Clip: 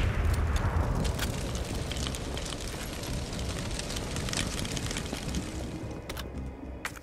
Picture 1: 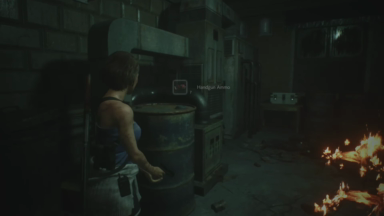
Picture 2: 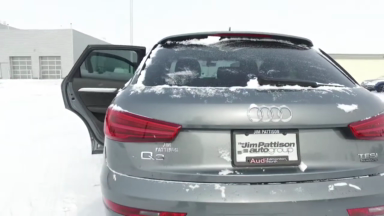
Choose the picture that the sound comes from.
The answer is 1